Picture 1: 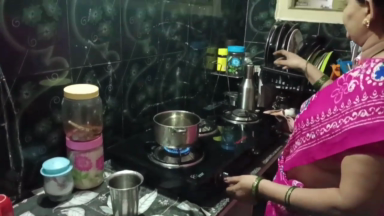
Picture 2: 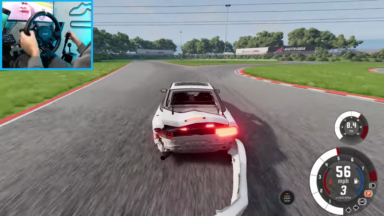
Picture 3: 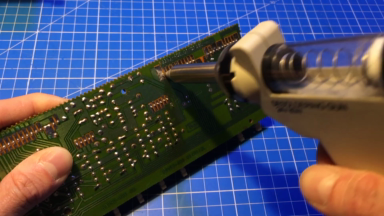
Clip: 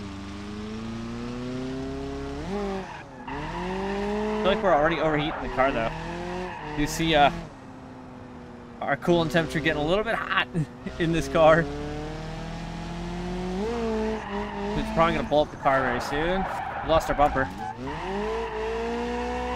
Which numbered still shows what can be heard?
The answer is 2